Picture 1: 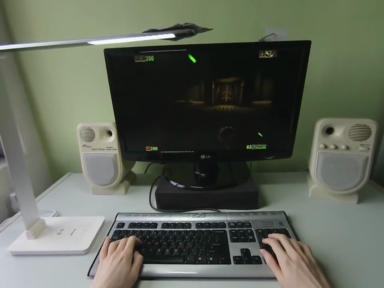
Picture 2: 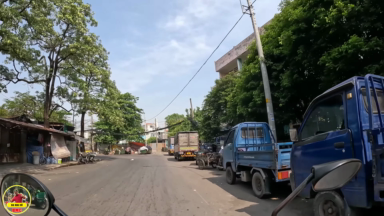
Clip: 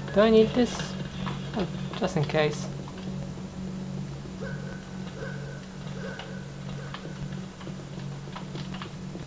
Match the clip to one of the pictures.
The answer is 1